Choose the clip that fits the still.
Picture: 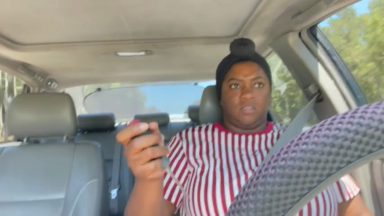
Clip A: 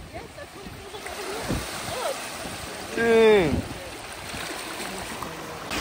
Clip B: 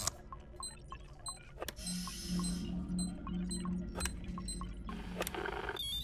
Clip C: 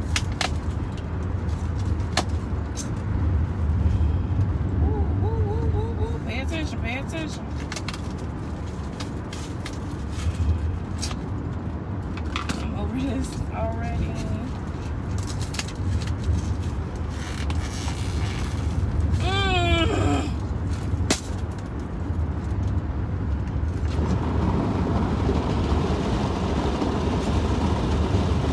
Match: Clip C